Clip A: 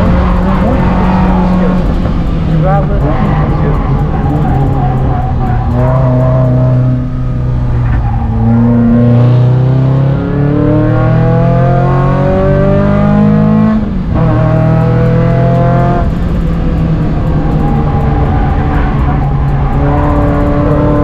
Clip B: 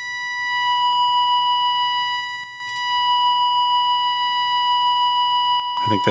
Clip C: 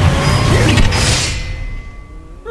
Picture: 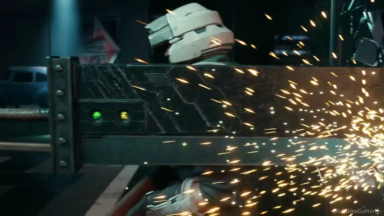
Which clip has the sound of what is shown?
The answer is C